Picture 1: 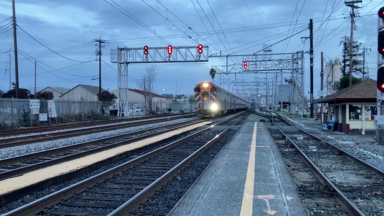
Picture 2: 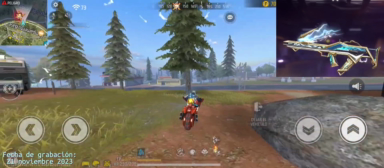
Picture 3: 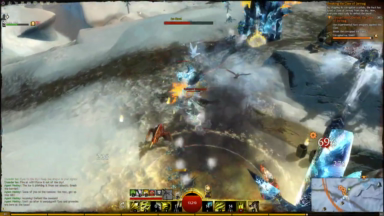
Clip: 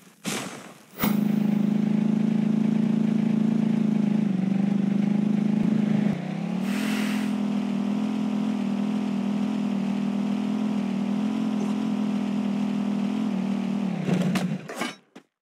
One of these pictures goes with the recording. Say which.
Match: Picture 2